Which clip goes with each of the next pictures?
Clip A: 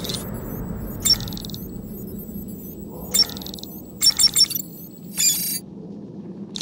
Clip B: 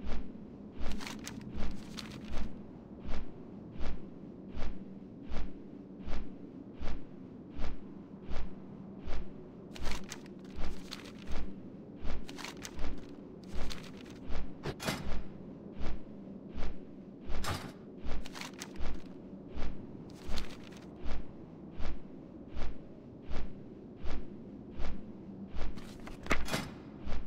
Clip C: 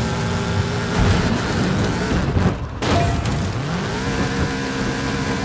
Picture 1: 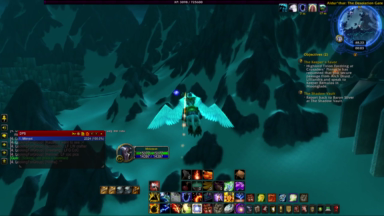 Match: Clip B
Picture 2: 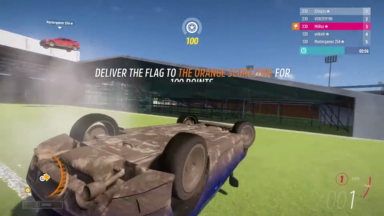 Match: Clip C